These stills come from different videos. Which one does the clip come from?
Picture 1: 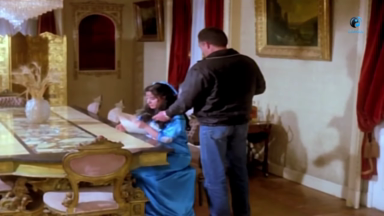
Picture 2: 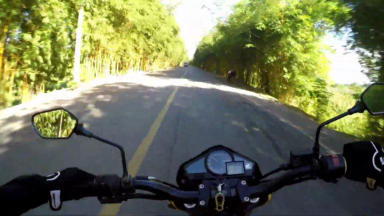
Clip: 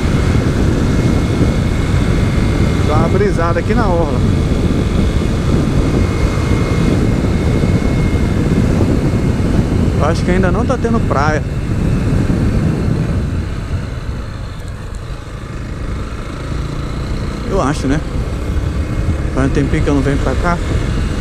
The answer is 2